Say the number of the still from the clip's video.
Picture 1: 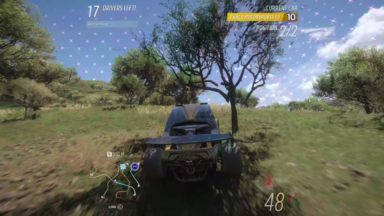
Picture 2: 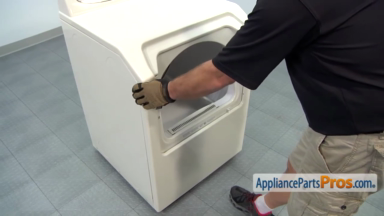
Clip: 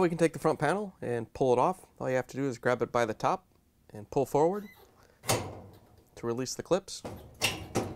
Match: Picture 2